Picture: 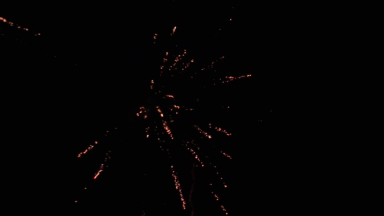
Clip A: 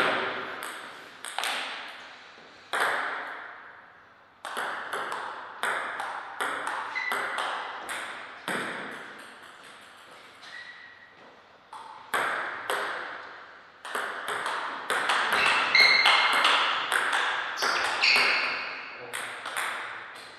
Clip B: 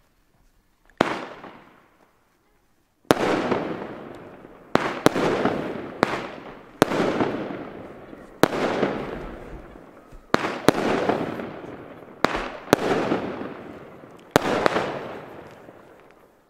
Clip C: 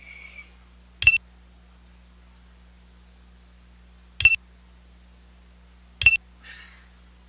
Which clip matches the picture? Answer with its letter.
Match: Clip B